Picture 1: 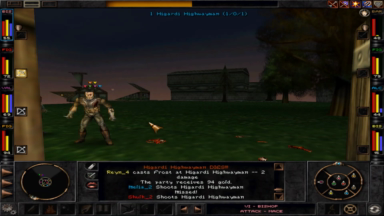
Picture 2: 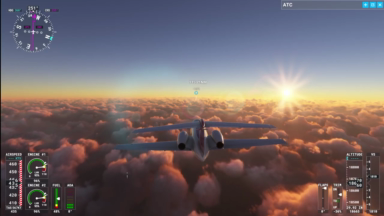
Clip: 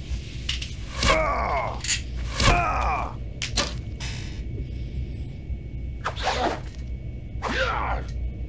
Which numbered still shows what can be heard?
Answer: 1